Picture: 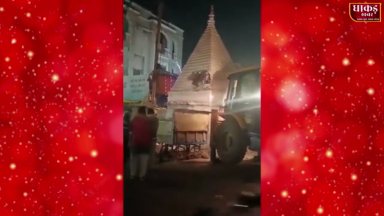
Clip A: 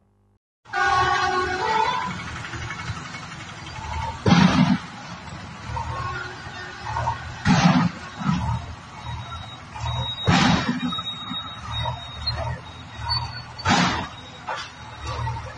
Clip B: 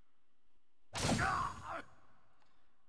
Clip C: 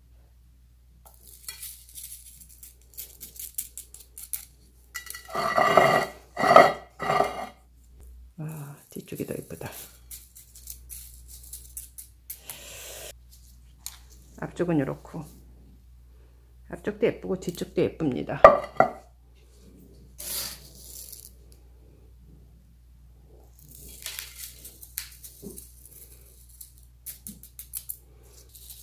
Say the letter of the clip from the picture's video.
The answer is A